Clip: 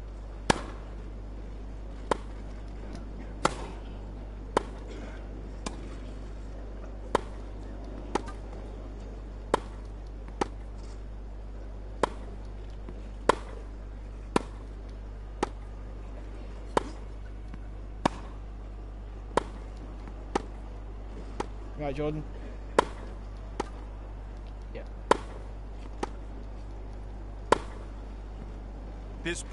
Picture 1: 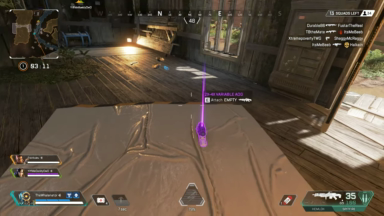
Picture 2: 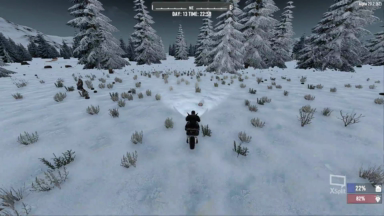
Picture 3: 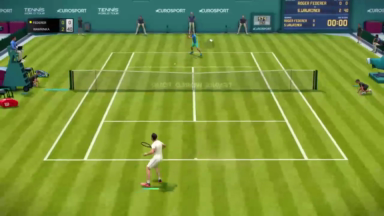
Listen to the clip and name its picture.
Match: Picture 3